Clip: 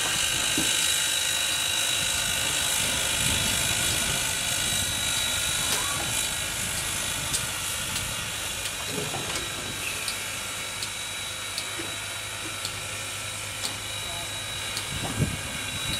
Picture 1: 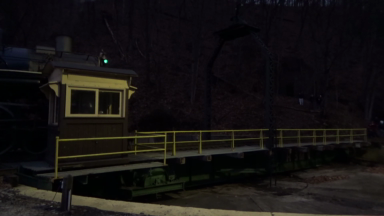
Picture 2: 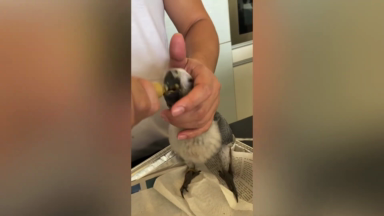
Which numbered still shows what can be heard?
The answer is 1